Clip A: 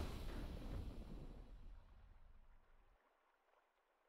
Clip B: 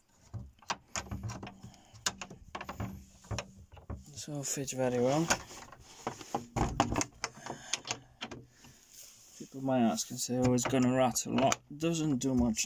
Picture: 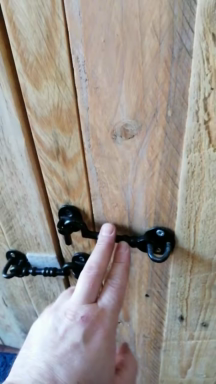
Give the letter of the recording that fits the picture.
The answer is B